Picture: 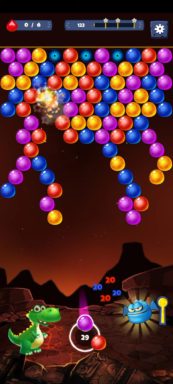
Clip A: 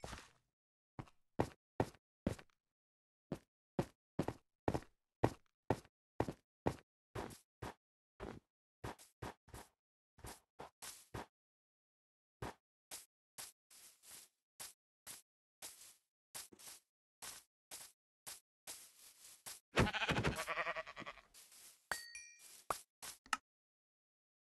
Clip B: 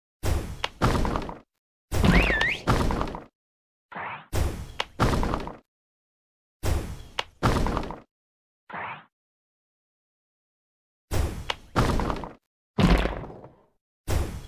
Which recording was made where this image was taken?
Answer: B